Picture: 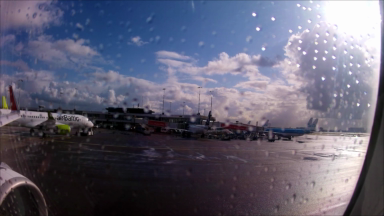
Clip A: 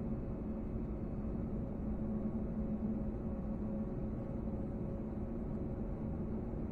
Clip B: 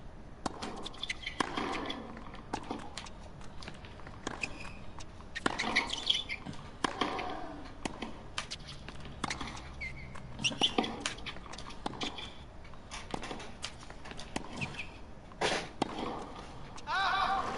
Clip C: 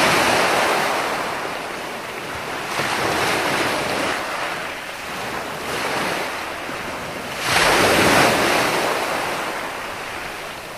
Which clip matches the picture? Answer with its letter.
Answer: A